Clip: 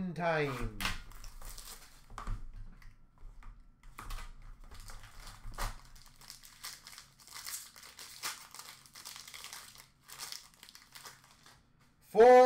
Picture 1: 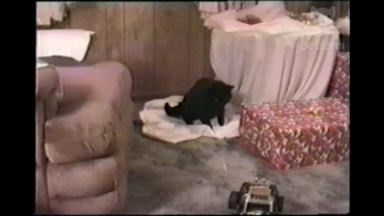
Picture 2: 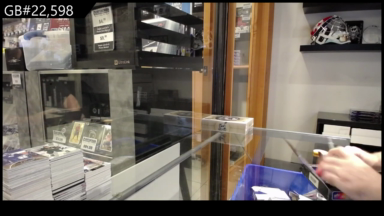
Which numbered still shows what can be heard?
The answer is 2